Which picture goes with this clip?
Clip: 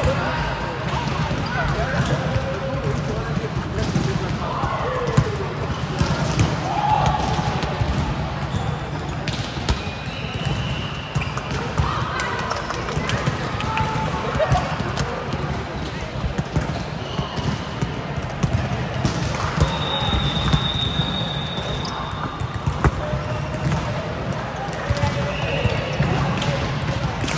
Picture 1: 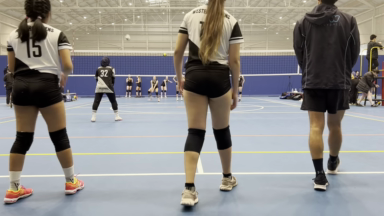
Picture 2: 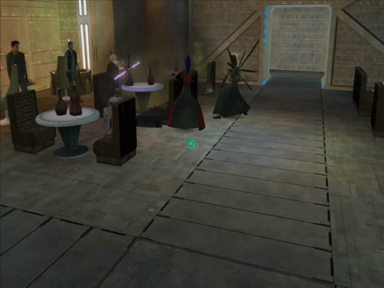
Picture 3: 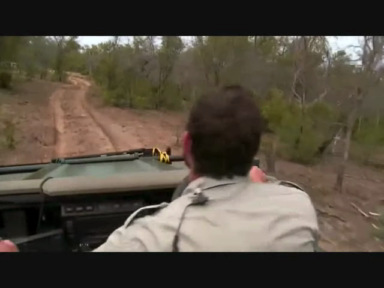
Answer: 1